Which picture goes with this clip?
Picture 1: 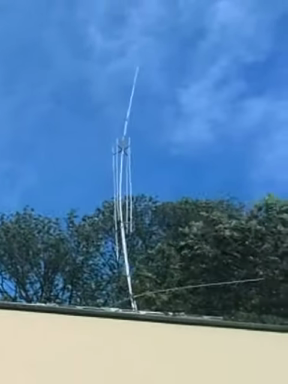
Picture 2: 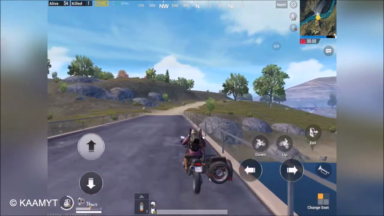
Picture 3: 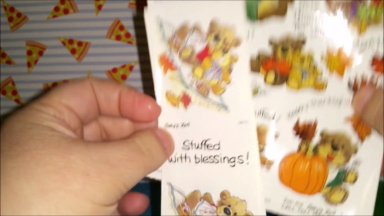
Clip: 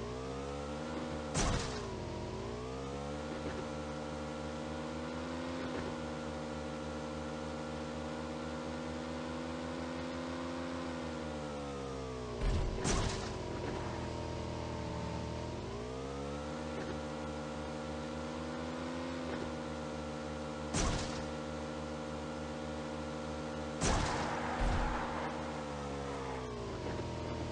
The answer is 2